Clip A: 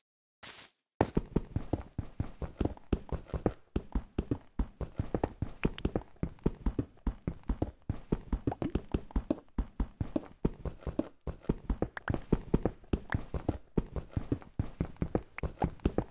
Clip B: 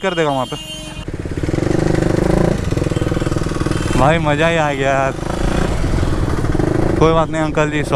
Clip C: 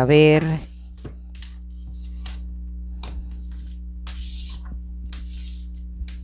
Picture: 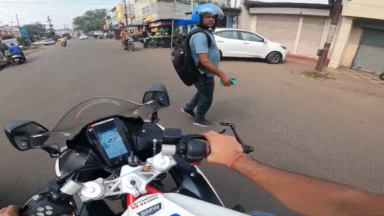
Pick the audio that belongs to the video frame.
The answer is B